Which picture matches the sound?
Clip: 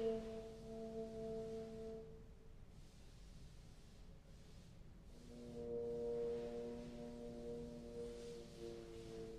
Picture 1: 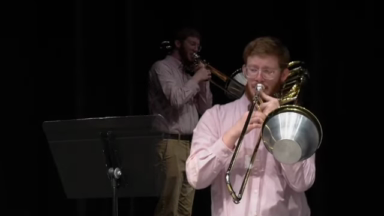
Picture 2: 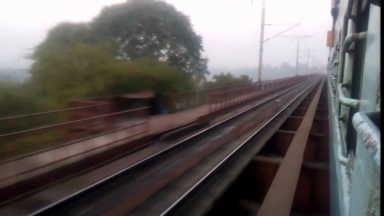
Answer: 1